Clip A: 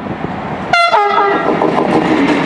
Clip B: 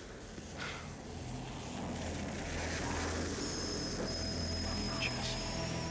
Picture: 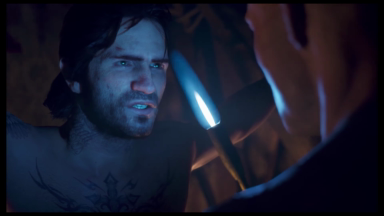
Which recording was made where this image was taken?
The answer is B